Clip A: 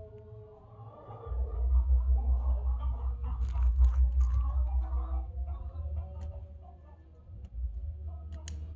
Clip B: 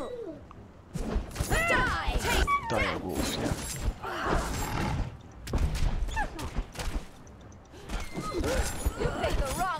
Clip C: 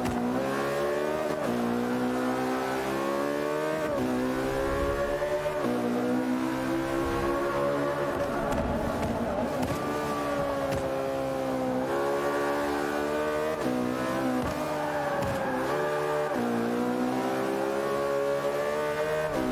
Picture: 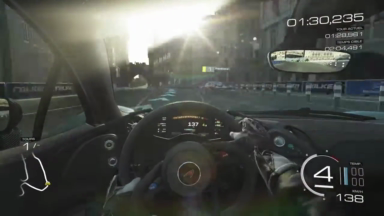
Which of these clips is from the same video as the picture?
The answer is C